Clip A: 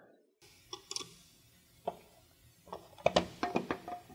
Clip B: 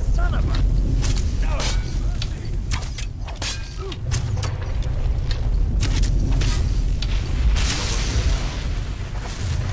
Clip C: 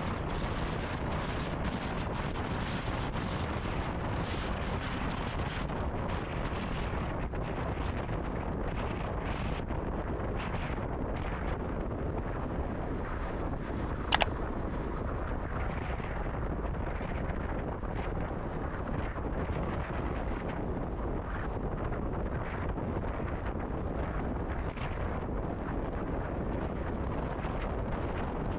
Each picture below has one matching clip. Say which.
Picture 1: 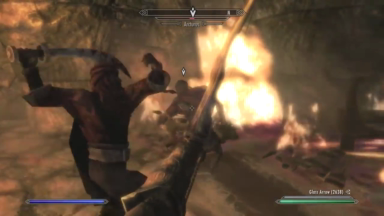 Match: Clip B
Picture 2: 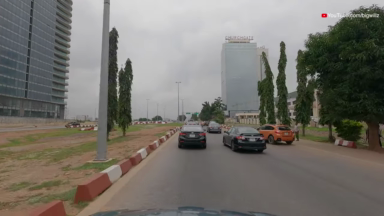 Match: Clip C